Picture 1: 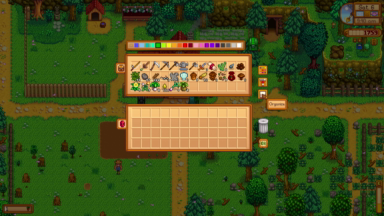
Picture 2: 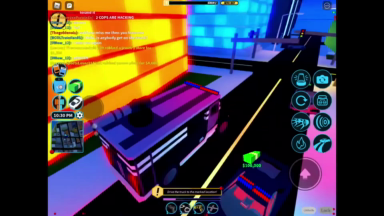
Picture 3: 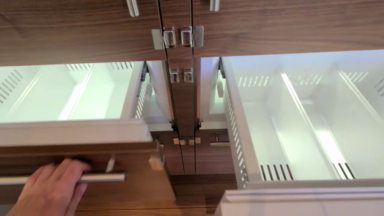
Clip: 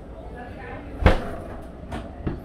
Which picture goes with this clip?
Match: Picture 3